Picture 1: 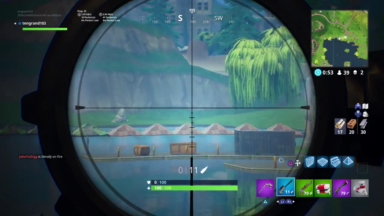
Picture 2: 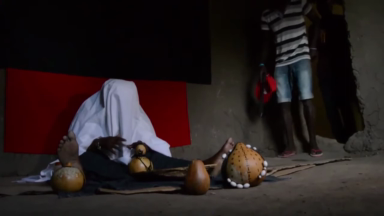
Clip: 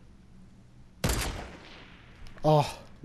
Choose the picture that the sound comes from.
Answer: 1